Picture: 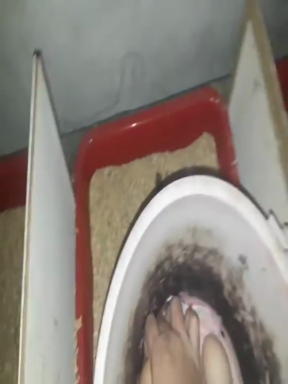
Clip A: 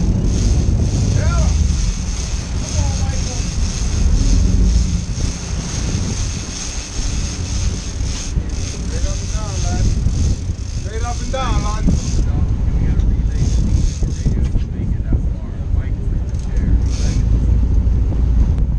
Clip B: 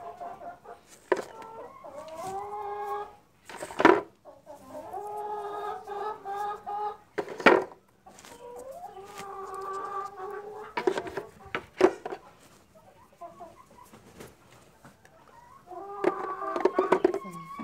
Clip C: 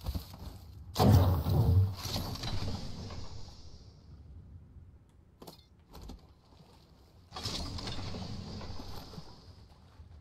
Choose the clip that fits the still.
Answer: B